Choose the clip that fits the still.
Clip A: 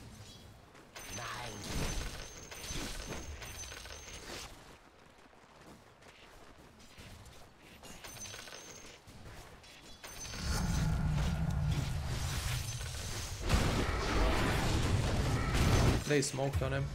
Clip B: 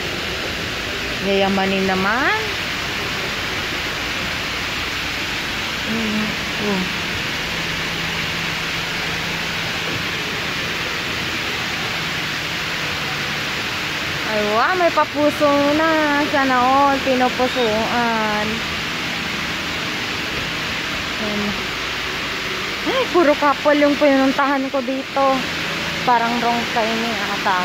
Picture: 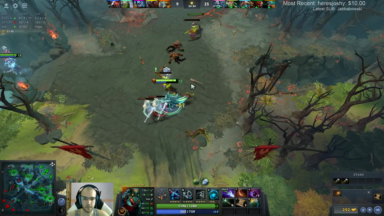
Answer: A